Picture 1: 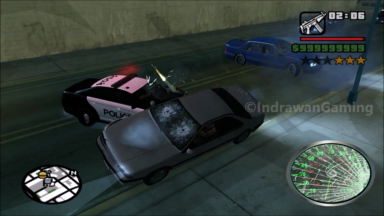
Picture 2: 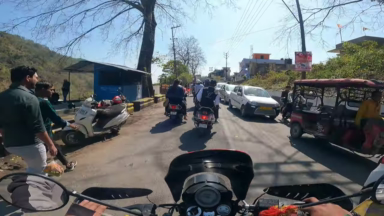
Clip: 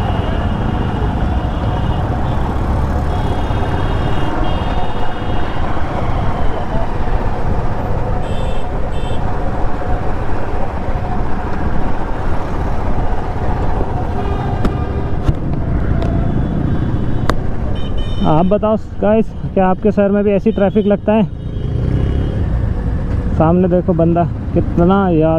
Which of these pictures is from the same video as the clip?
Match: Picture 2